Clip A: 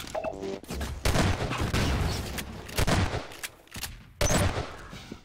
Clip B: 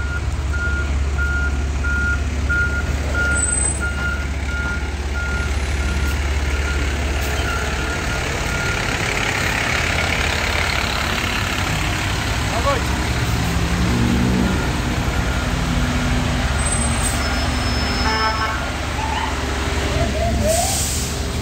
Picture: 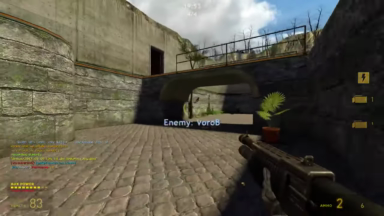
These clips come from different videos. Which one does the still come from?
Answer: A